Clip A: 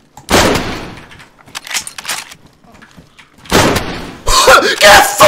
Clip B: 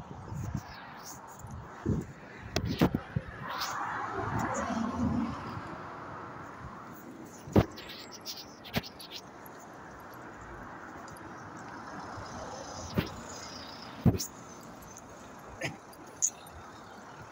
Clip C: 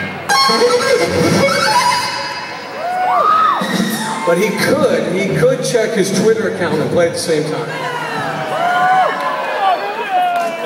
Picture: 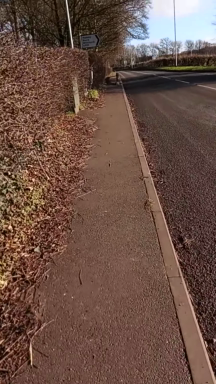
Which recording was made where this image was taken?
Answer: B